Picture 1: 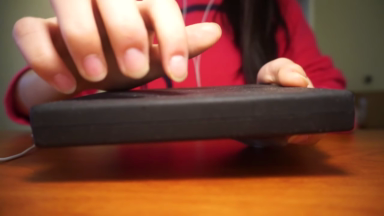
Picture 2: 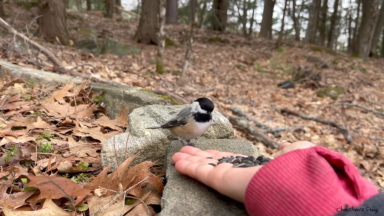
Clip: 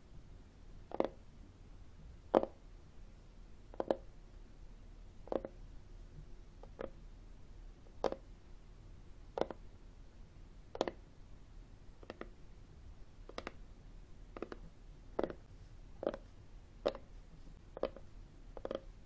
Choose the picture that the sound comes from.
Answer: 1